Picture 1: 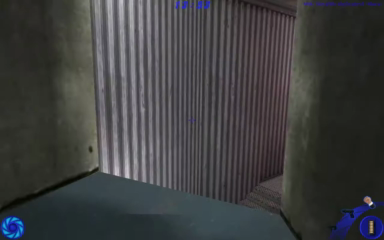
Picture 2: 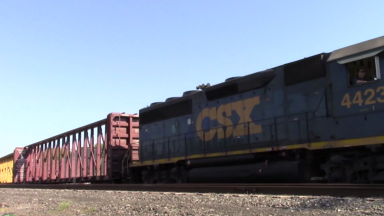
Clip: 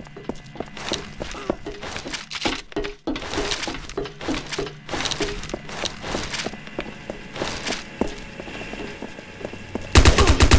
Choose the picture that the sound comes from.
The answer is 1